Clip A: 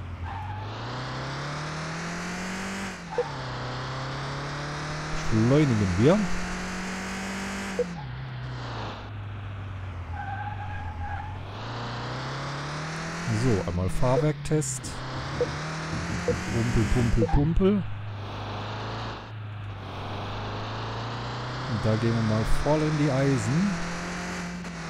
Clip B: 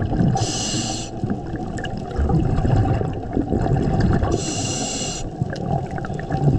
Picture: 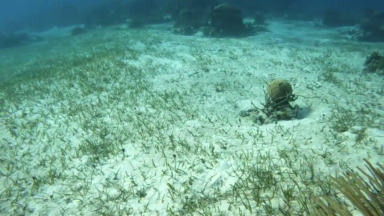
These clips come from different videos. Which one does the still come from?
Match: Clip B